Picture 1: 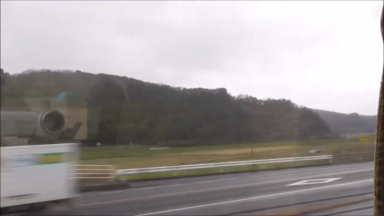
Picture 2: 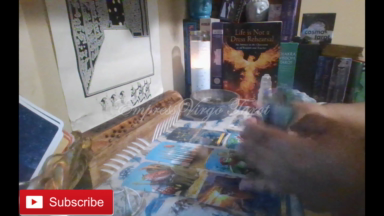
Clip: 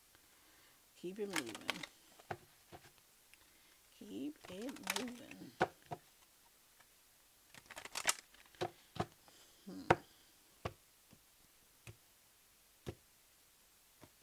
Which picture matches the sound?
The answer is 2